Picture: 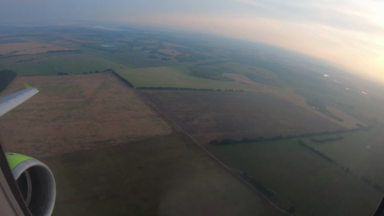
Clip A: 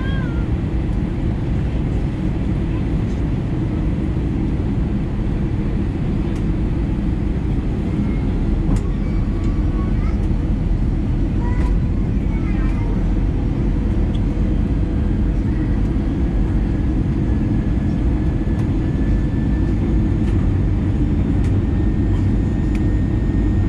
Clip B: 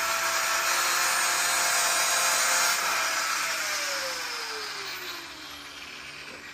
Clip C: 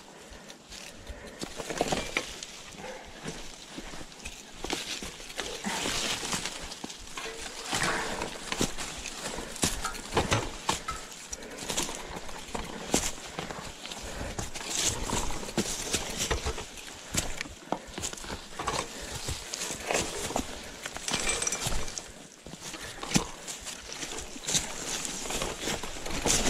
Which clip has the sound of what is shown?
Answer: A